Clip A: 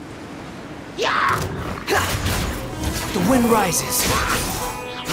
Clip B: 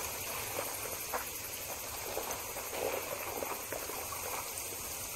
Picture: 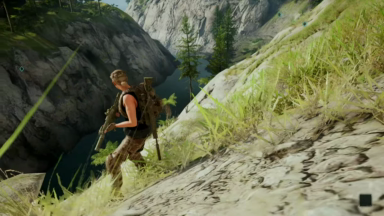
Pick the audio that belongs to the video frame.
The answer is B